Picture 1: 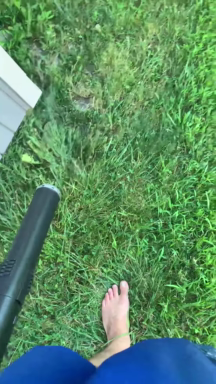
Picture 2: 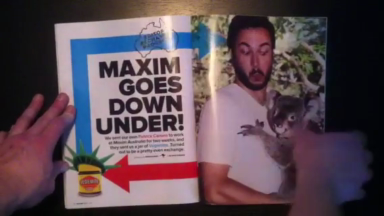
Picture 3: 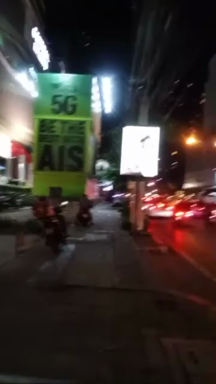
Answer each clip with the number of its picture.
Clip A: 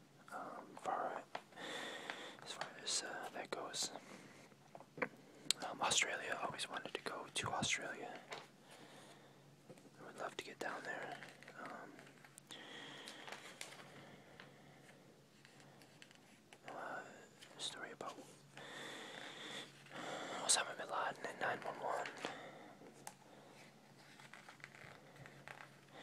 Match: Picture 2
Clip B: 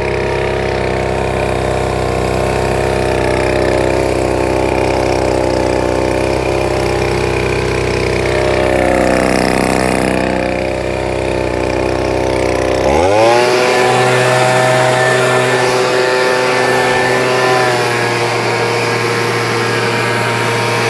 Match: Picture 1